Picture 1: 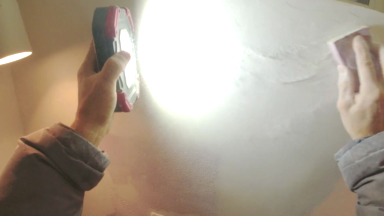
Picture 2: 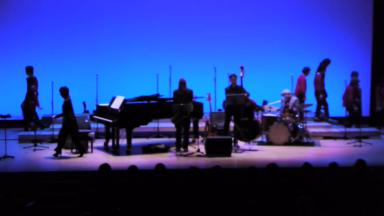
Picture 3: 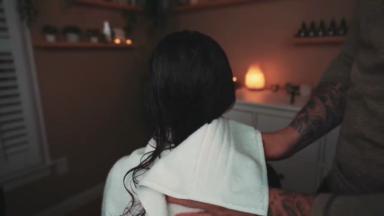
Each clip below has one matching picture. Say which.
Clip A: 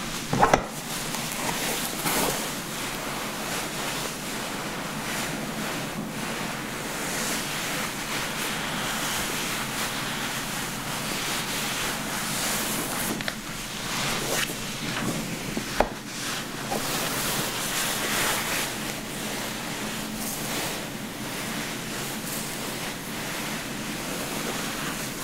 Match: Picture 3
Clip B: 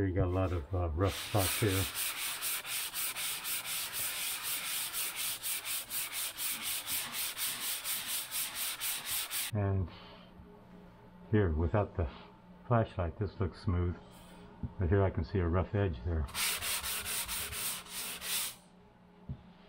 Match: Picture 1